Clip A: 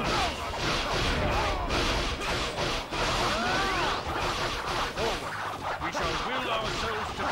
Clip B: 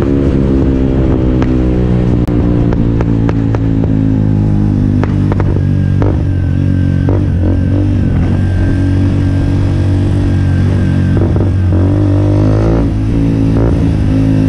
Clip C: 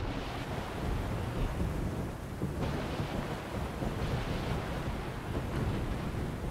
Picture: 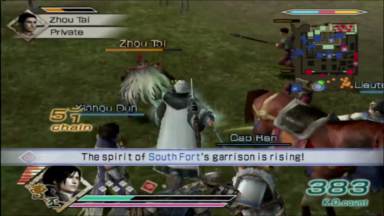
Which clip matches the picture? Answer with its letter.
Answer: A